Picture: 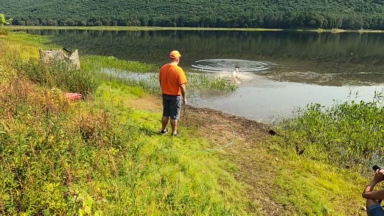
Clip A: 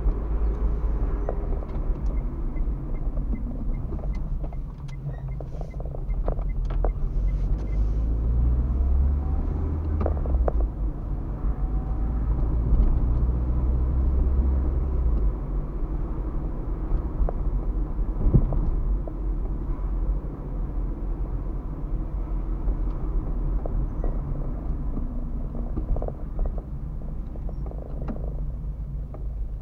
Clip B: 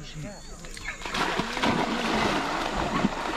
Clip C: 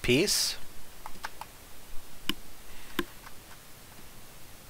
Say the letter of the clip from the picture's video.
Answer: B